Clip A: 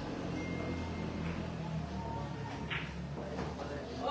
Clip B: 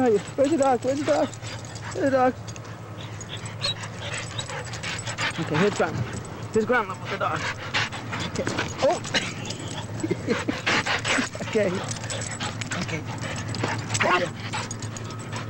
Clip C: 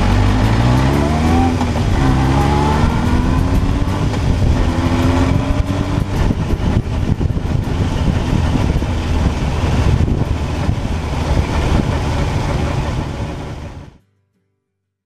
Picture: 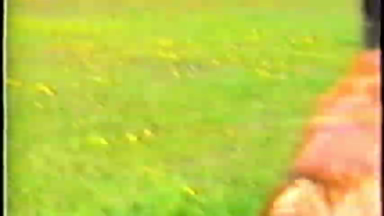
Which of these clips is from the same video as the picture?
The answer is B